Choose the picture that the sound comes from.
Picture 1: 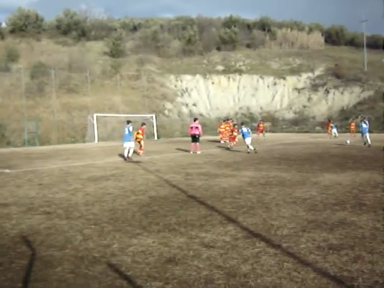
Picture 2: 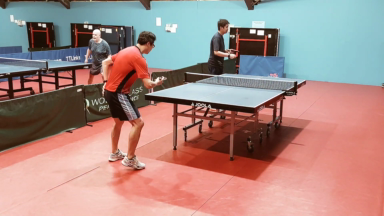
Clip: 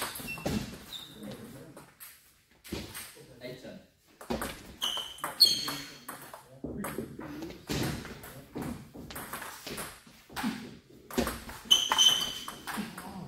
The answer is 2